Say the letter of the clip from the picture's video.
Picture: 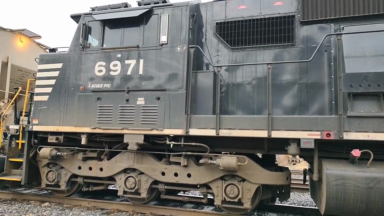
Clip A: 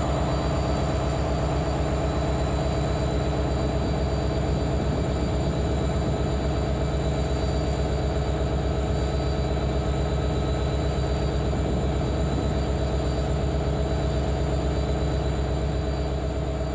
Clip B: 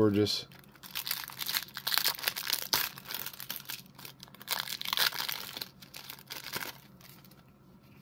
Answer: A